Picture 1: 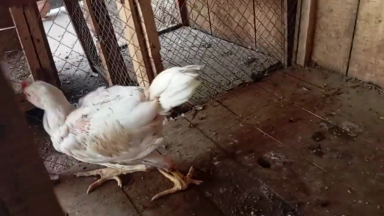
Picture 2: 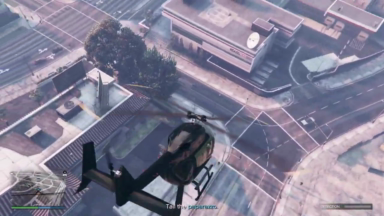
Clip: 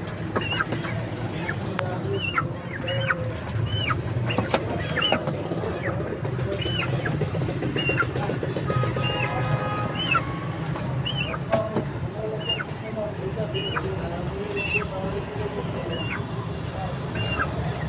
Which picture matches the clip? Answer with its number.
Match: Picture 1